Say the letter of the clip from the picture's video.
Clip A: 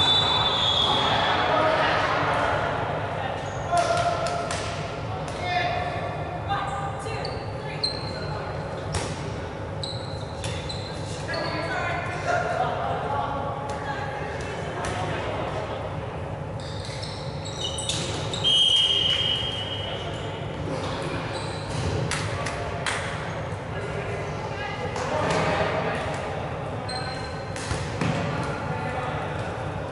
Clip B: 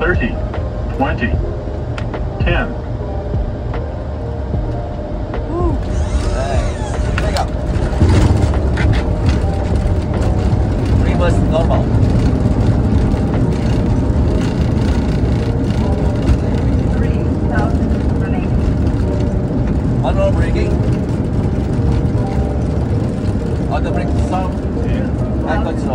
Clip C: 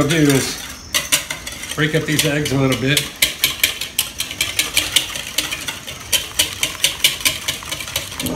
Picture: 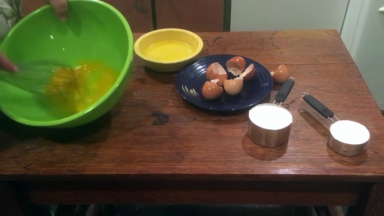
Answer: C